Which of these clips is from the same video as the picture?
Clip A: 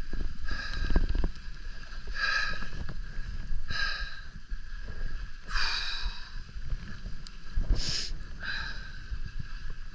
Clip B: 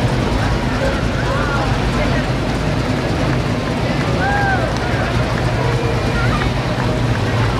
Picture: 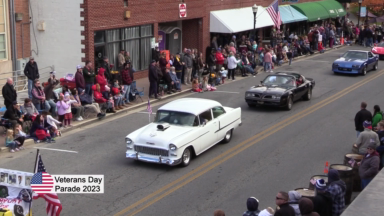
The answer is B